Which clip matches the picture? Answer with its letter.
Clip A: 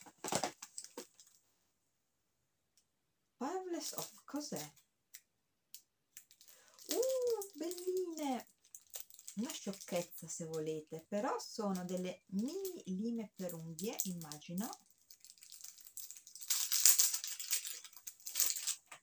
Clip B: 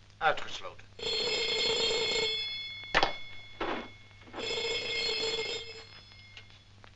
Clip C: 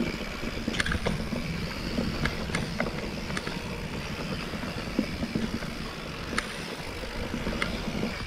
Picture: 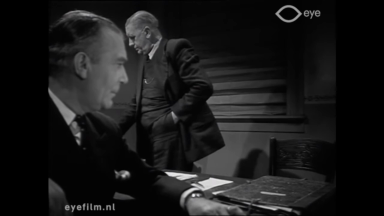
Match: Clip B